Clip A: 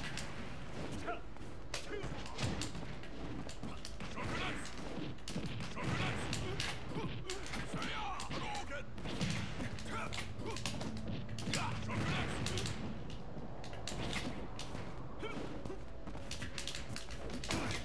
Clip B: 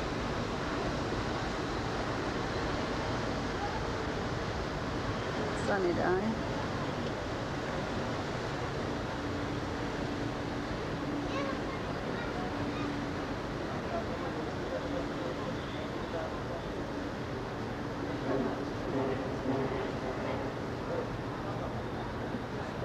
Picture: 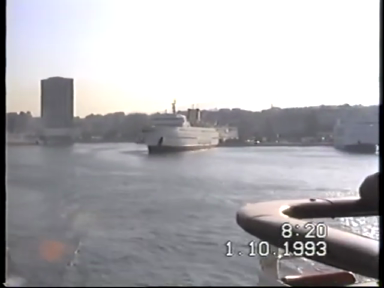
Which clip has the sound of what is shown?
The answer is B